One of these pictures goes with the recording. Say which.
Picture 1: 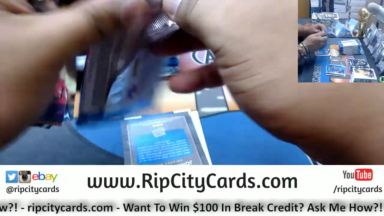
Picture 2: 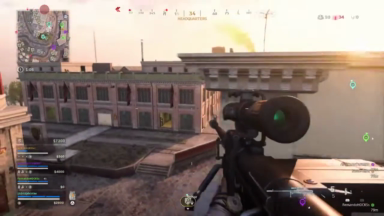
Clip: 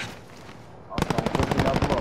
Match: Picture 2